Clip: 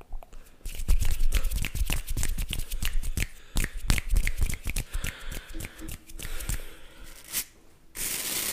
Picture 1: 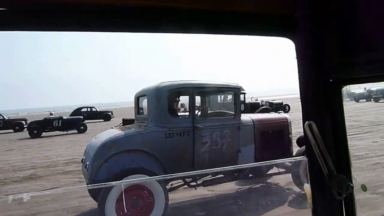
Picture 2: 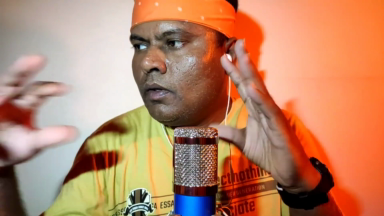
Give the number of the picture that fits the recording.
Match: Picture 2